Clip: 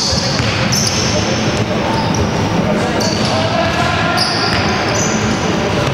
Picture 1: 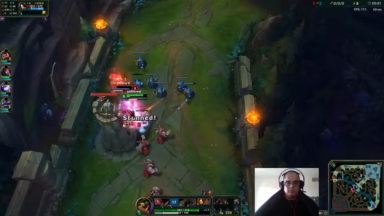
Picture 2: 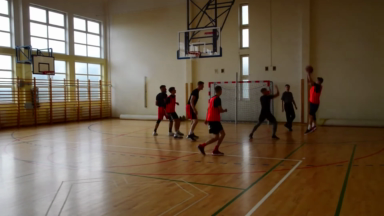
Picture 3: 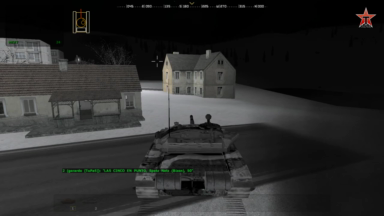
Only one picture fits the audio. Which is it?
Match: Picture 2